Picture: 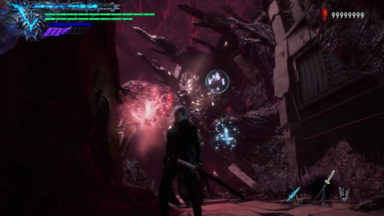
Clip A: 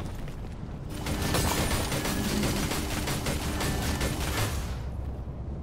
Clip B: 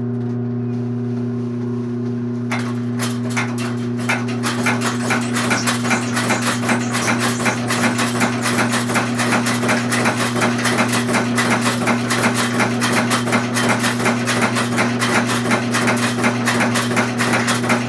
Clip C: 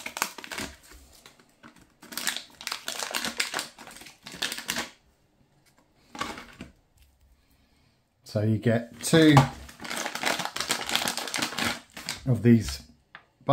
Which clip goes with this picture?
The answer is A